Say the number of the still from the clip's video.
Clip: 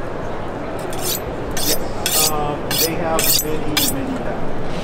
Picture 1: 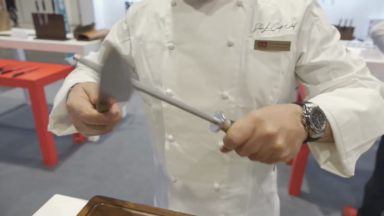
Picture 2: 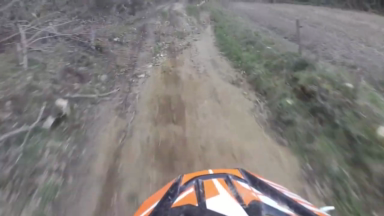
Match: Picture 1